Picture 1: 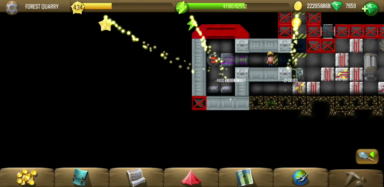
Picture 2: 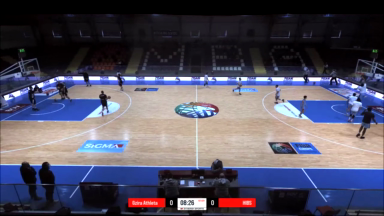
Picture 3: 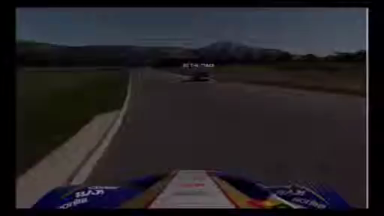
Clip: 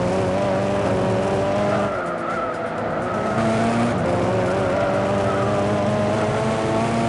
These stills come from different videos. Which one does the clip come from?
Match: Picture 3